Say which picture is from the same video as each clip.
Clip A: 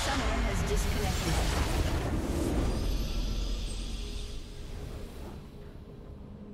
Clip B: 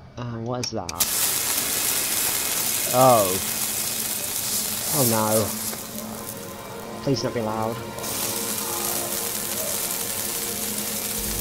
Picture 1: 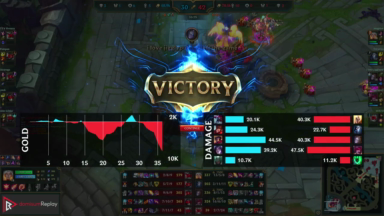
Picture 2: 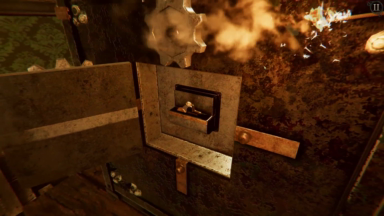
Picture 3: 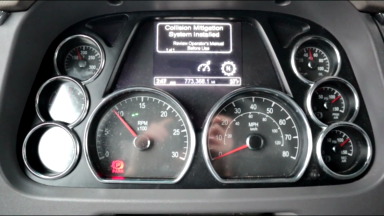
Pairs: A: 1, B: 2